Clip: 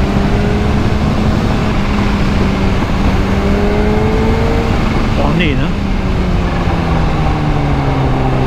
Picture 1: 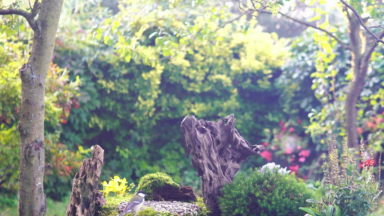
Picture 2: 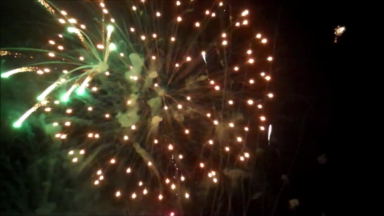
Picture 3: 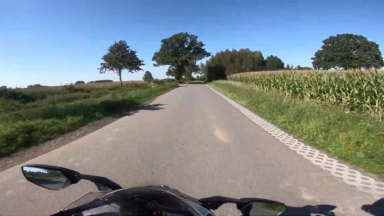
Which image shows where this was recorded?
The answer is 3